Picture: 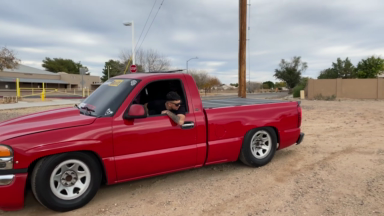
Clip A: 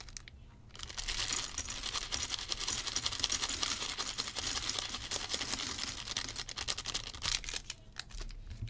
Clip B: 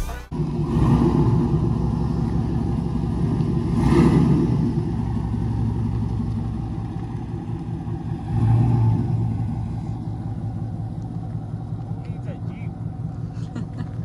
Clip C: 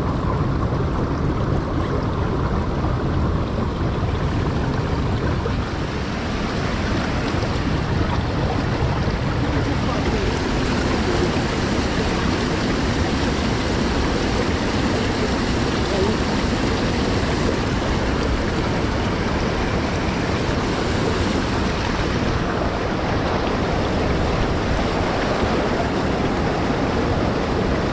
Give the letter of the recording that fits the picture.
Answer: B